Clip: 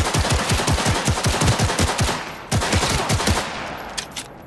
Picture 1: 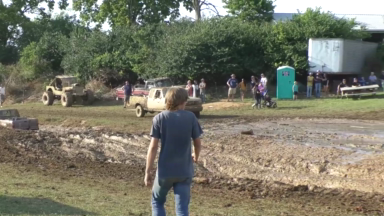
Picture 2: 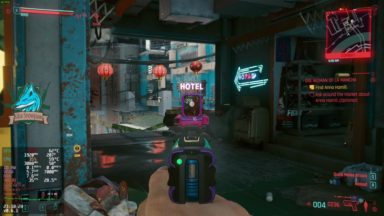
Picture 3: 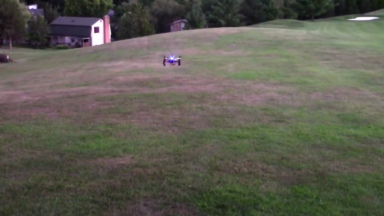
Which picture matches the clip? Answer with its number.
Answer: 2